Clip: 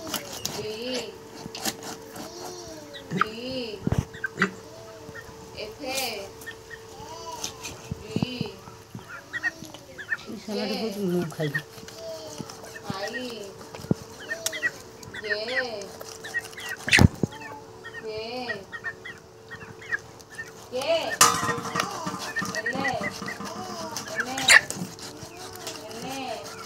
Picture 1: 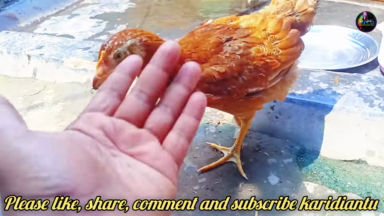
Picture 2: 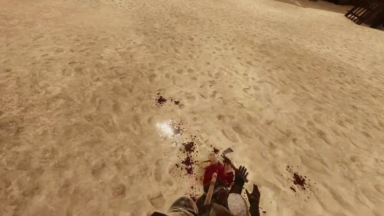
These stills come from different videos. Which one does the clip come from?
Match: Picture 1